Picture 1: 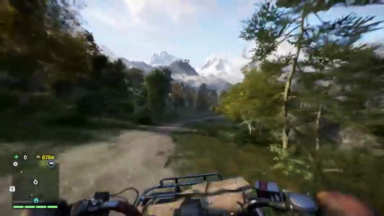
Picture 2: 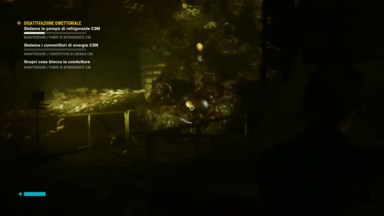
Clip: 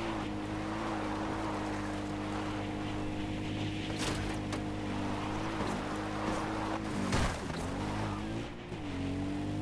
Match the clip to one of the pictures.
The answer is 1